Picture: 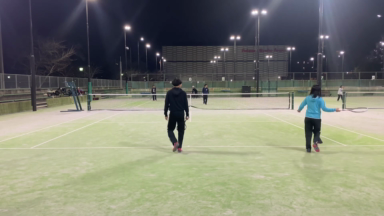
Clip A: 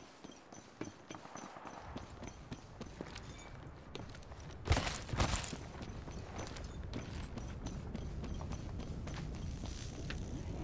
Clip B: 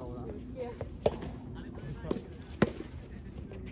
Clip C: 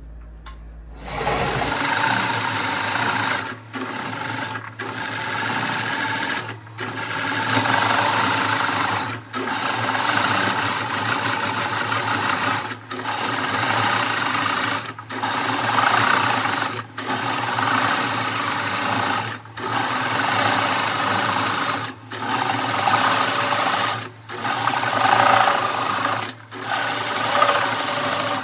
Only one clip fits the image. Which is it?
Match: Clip B